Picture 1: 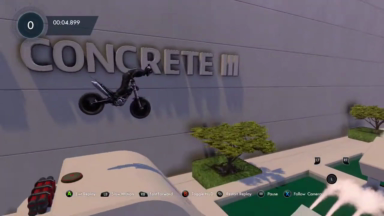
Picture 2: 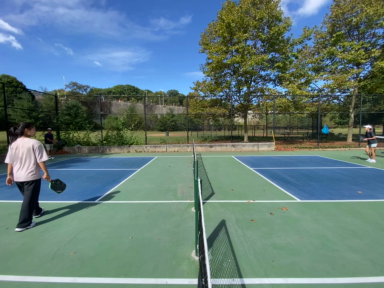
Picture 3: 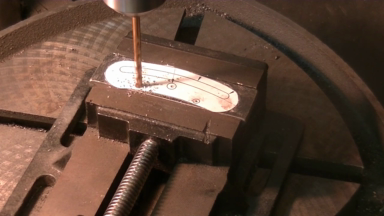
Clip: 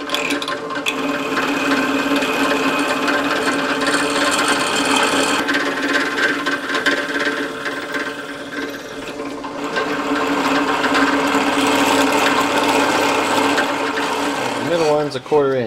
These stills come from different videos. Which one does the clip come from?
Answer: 3